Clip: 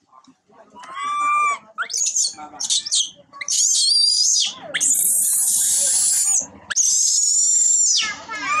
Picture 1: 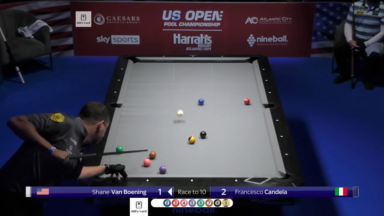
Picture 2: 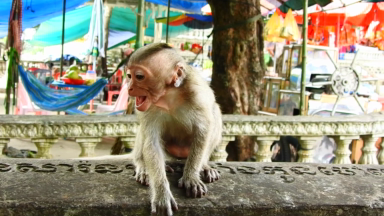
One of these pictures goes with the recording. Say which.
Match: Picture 2